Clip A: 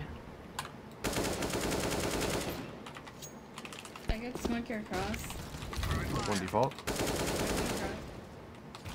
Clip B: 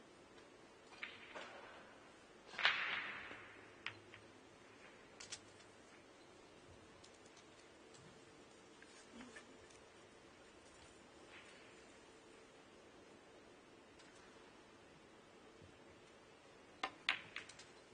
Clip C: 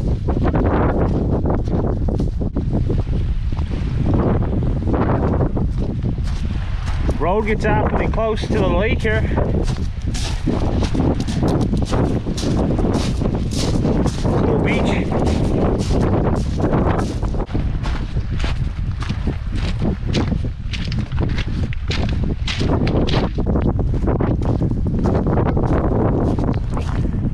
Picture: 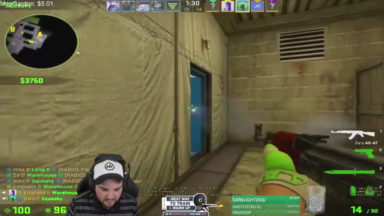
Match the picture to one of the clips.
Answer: A